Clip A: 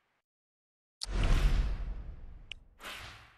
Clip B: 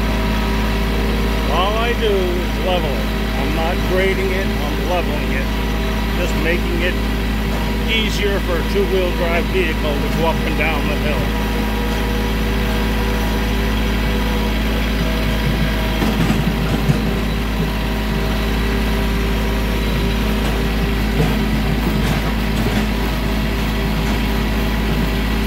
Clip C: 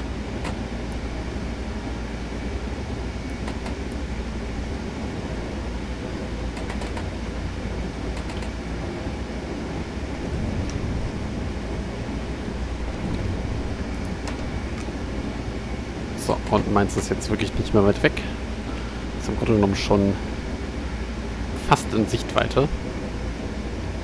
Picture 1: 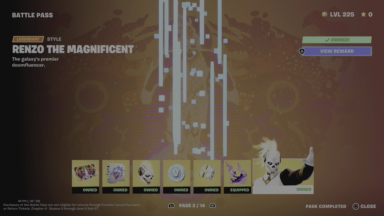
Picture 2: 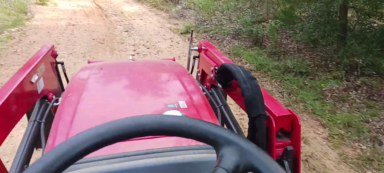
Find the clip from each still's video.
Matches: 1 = A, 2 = B